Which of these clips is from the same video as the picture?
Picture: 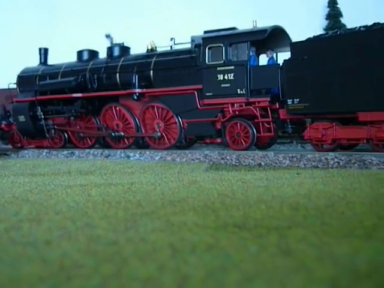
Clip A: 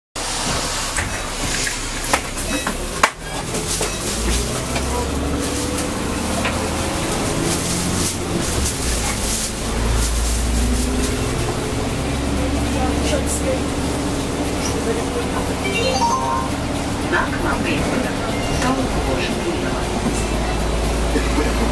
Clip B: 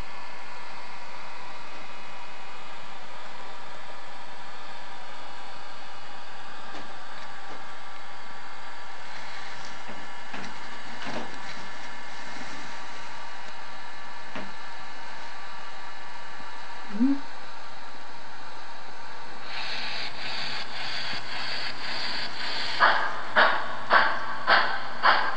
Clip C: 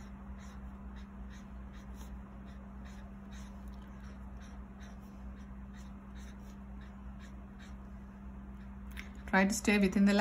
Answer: B